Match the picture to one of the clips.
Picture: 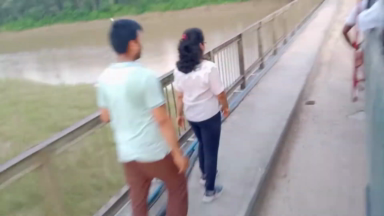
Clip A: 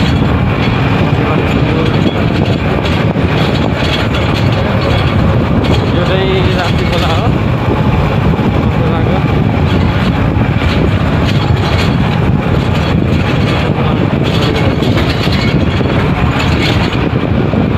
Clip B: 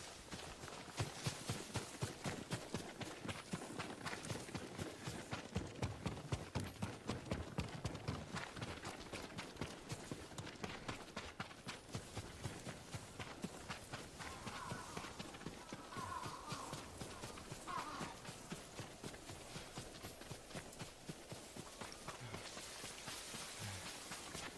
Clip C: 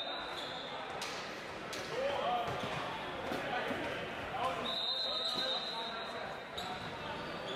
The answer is A